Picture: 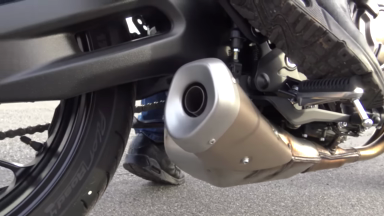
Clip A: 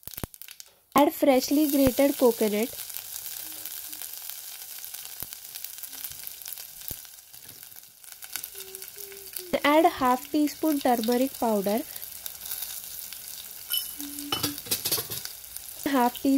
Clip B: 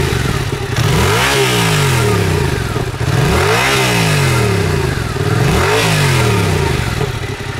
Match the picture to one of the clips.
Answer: B